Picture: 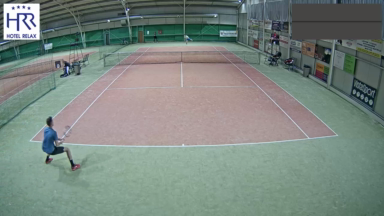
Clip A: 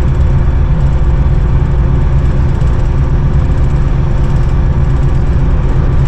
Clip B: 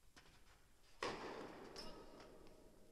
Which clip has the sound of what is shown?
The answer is B